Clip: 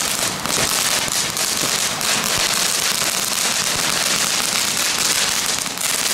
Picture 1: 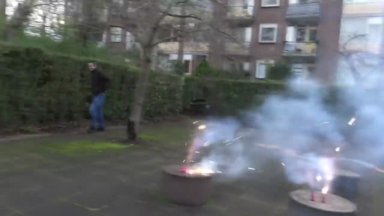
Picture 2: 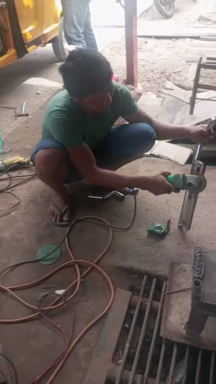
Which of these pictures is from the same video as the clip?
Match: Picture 1